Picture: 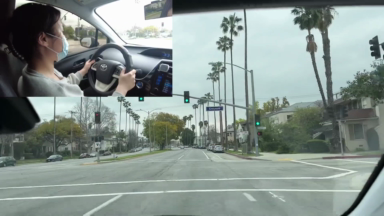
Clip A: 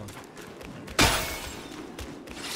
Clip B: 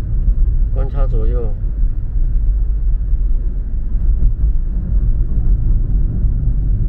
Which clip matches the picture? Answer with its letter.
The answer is B